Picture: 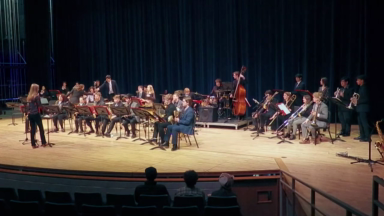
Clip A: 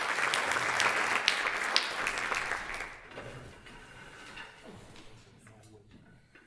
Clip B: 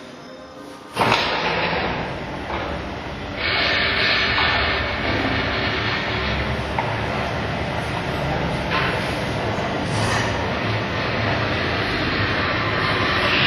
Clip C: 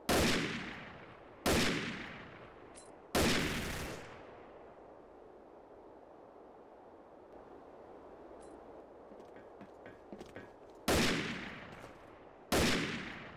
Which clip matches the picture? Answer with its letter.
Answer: A